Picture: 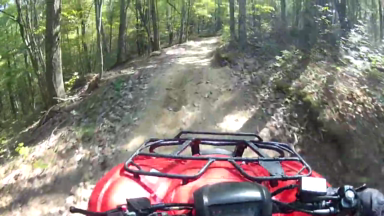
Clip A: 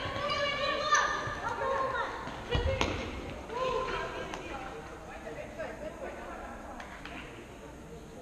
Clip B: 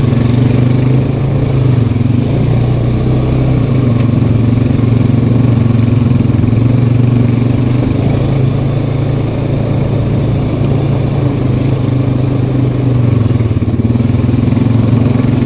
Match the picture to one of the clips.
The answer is B